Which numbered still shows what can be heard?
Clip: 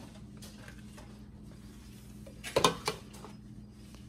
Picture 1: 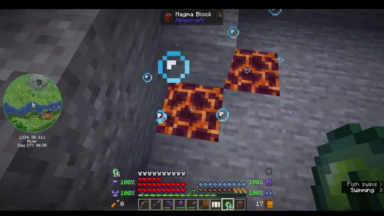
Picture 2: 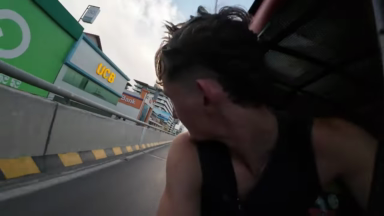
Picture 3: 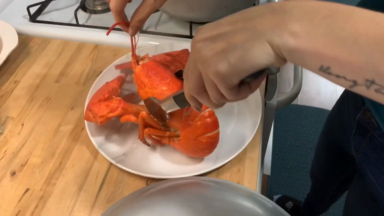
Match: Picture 3